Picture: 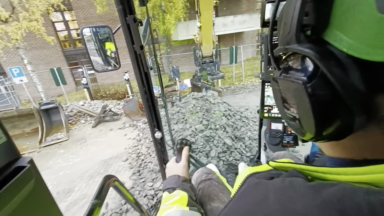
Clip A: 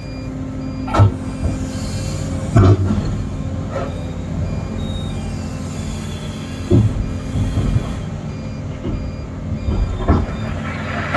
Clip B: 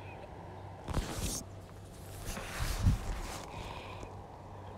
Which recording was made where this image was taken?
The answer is A